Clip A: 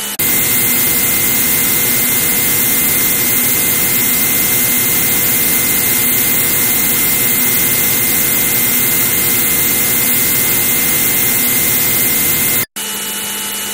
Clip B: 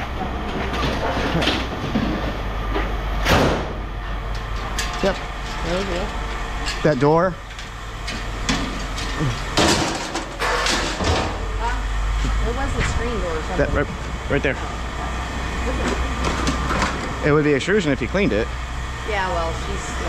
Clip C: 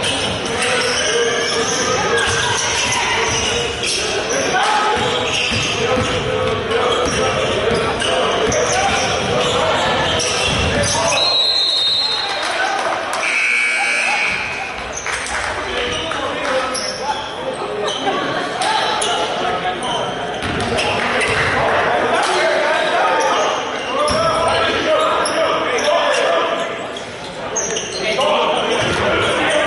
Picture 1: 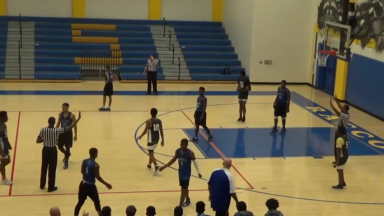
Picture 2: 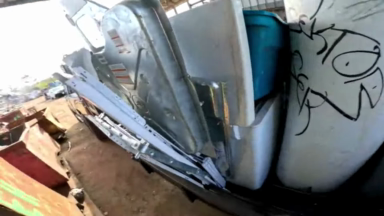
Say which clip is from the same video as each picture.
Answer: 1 C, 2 B